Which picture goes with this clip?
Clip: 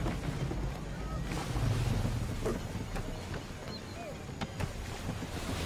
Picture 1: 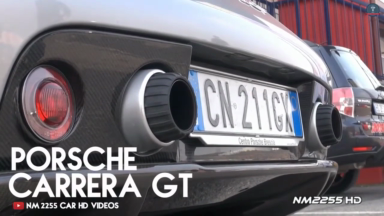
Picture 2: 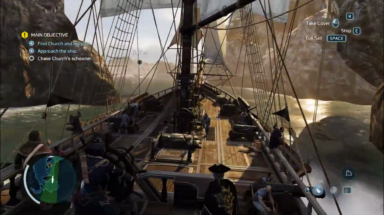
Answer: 2